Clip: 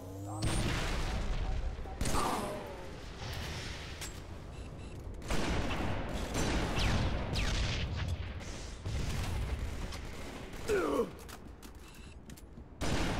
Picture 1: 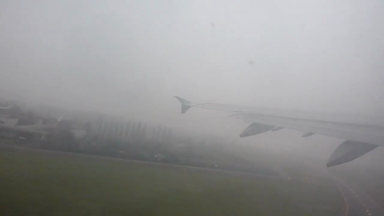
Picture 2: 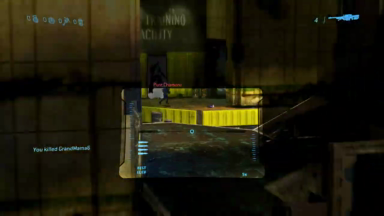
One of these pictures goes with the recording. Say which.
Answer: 2